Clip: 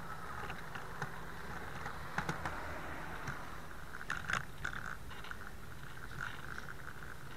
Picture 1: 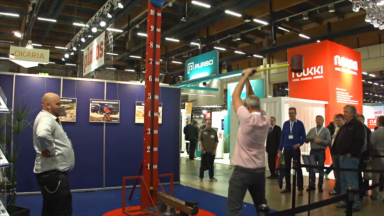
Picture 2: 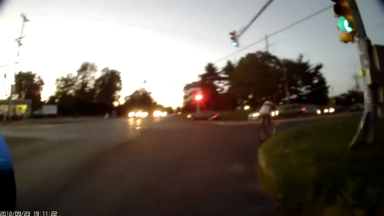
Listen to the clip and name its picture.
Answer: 2